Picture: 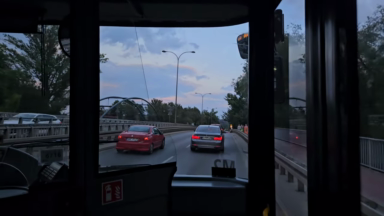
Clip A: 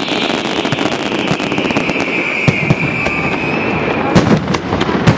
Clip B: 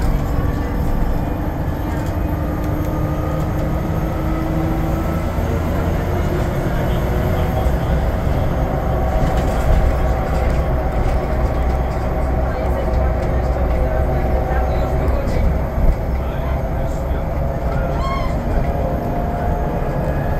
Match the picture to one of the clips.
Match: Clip B